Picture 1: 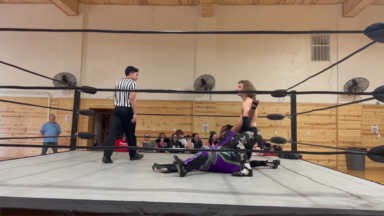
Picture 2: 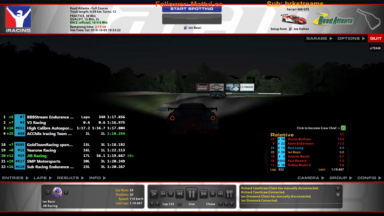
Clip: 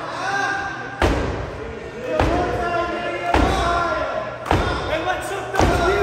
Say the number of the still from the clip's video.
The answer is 1